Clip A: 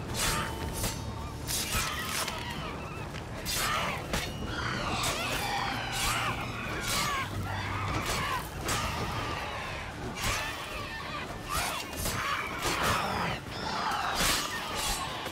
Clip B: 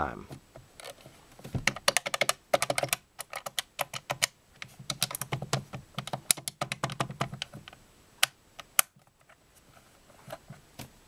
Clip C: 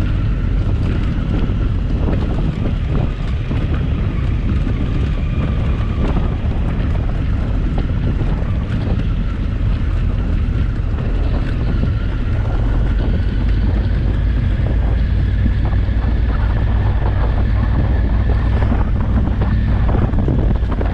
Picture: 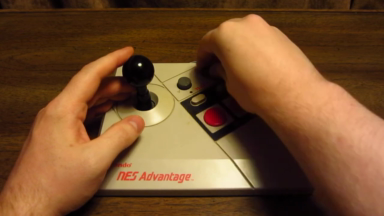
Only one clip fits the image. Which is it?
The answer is B